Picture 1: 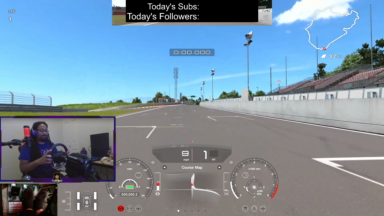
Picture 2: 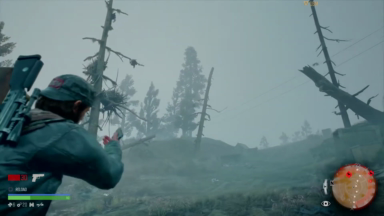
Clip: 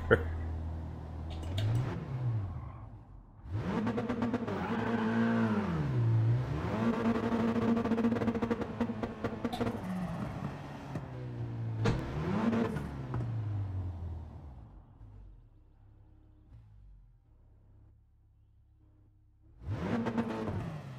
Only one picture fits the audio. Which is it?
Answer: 1